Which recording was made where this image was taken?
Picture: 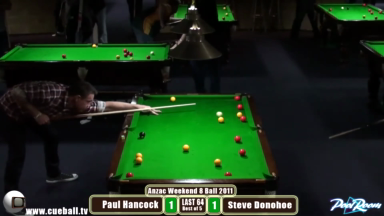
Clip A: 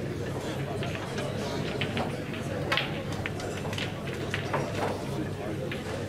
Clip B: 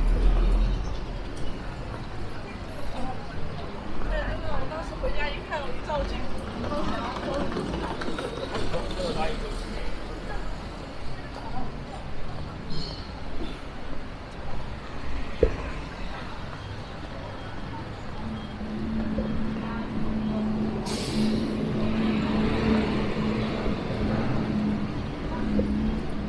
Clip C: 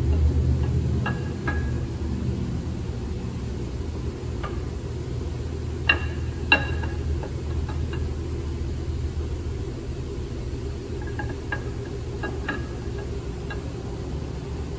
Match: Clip A